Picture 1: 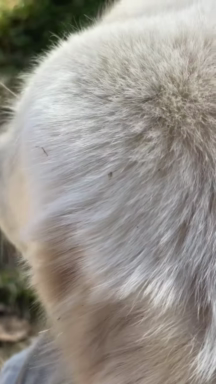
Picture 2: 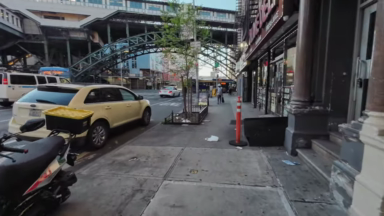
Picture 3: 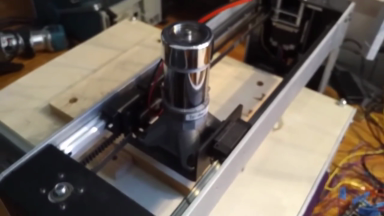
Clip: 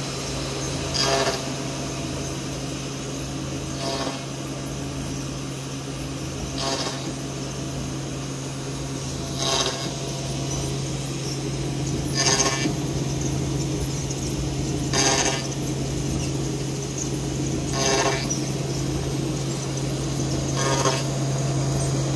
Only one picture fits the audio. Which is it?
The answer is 3